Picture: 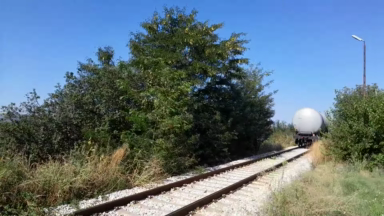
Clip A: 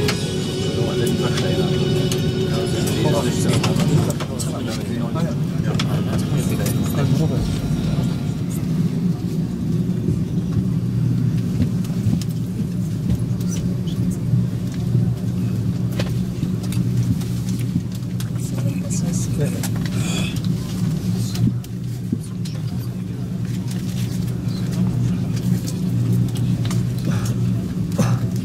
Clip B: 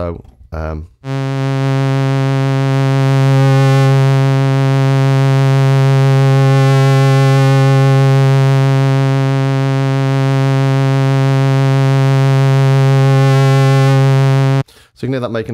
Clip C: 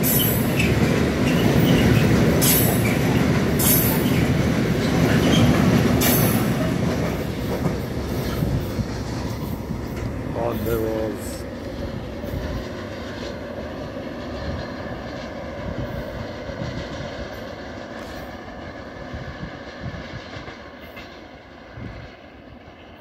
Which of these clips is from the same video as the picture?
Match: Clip C